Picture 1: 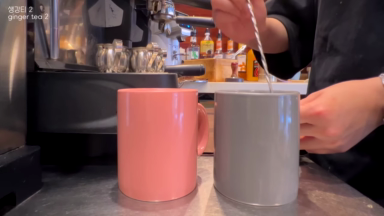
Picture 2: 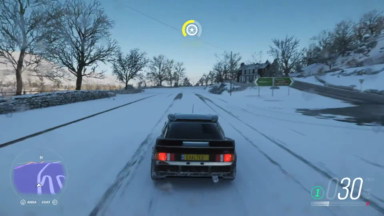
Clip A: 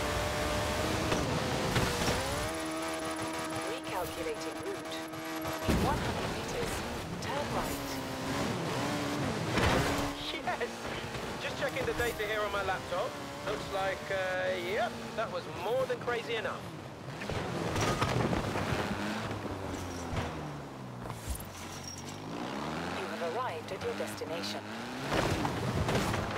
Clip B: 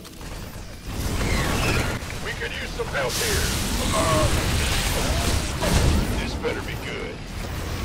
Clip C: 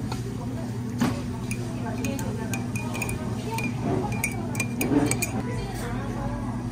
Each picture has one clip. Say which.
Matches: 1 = C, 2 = A